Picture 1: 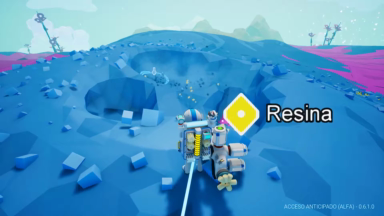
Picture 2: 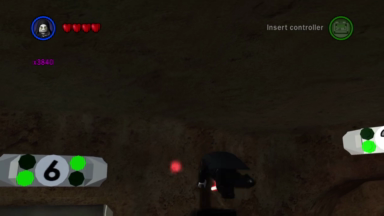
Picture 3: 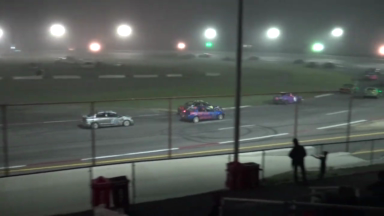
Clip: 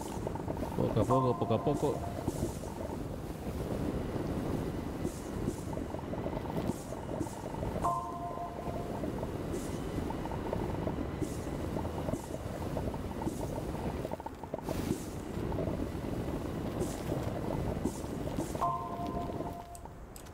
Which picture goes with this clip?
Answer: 1